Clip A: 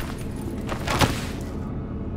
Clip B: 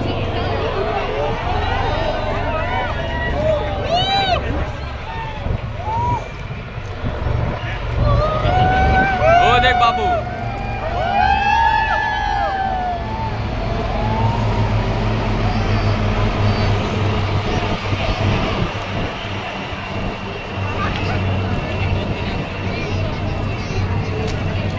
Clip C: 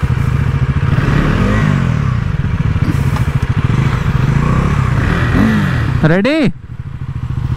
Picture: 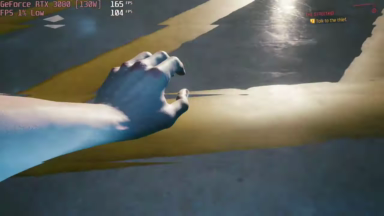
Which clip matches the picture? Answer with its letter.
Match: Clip A